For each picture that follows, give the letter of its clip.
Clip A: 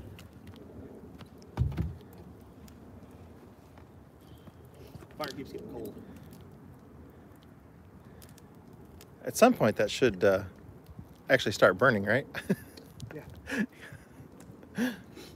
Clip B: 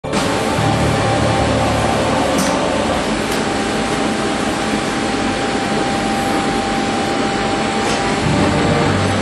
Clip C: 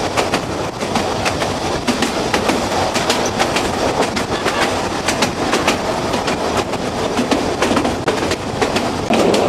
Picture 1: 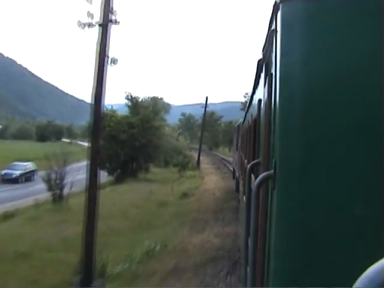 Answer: C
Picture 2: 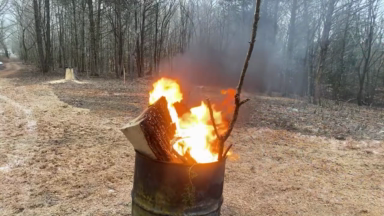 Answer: A